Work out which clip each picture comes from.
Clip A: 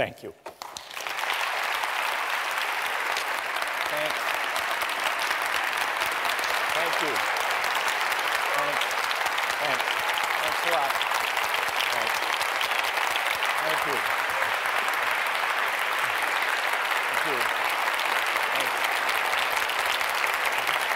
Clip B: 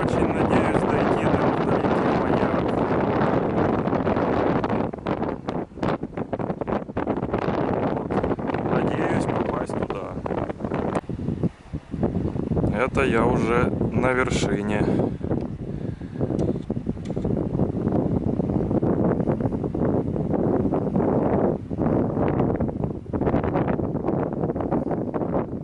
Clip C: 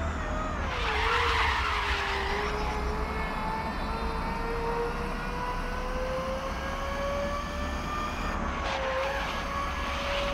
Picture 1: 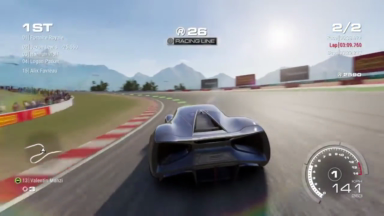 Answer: C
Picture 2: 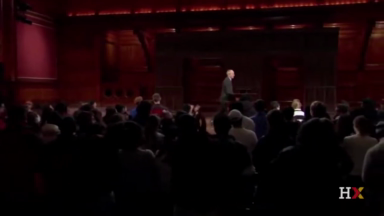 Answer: A